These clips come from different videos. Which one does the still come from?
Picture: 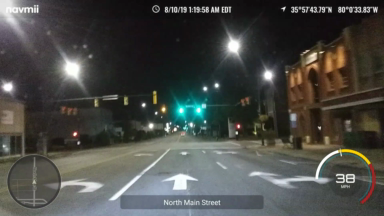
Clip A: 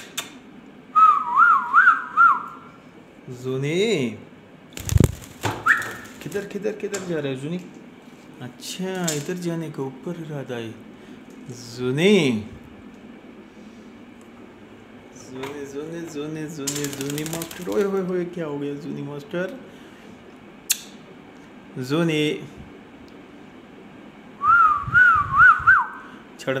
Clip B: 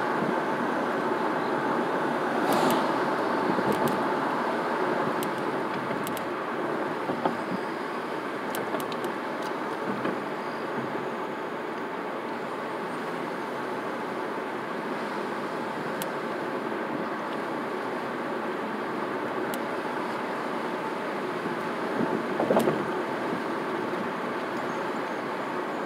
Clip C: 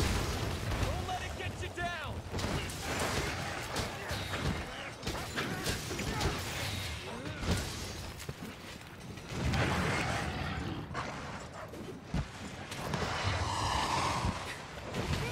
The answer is B